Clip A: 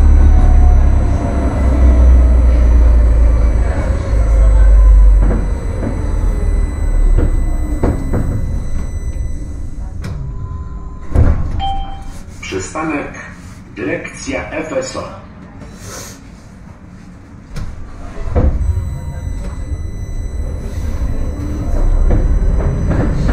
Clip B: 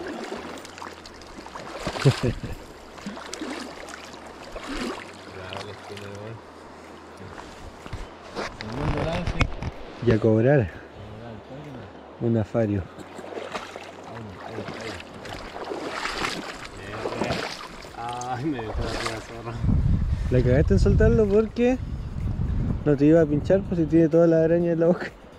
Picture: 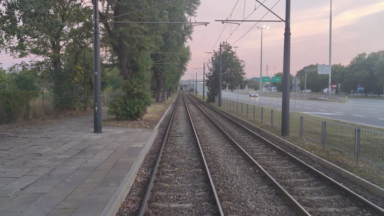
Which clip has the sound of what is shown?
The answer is A